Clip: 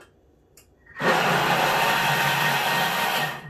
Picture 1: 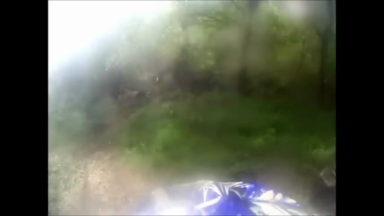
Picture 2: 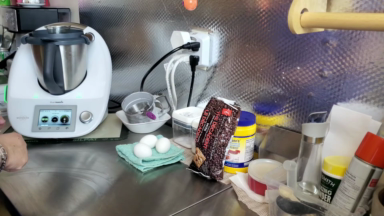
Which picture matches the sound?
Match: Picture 2